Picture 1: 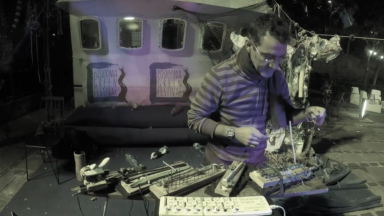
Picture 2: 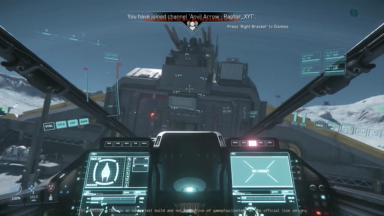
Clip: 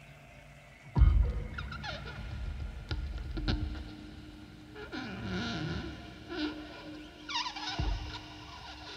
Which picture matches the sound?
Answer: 1